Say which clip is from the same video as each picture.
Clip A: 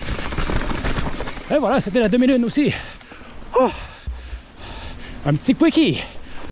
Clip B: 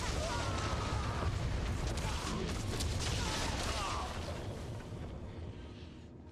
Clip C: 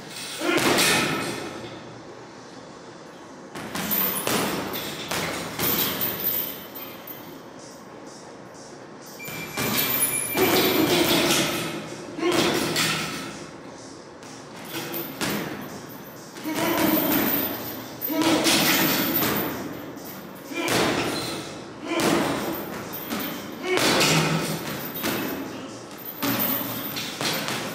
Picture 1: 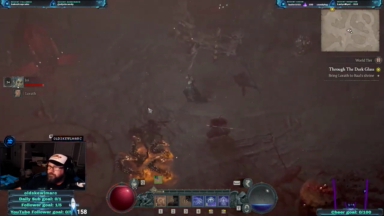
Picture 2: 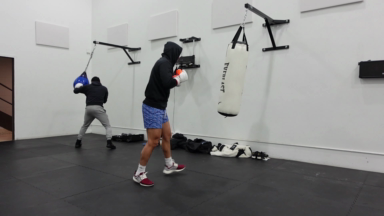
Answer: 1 B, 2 C